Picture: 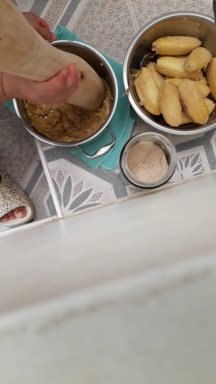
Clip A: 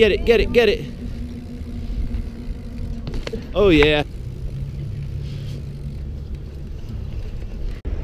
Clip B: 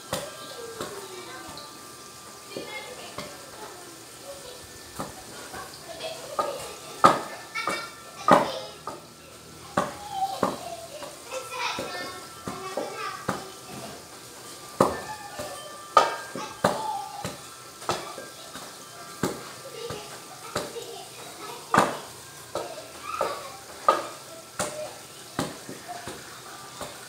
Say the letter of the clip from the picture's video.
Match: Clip B